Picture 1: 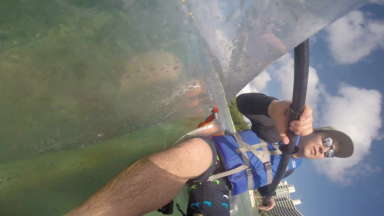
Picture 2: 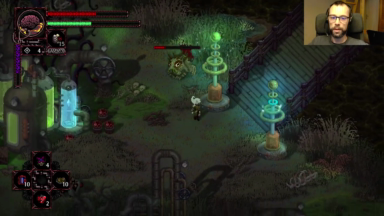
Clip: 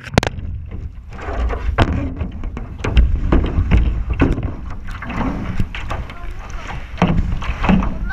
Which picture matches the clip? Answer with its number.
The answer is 1